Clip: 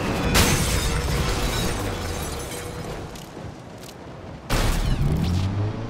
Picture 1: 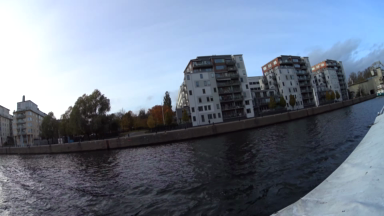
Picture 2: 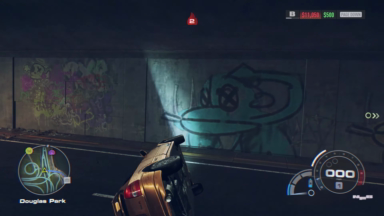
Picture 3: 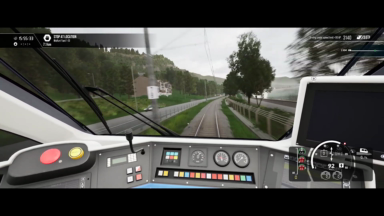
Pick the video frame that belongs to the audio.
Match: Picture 2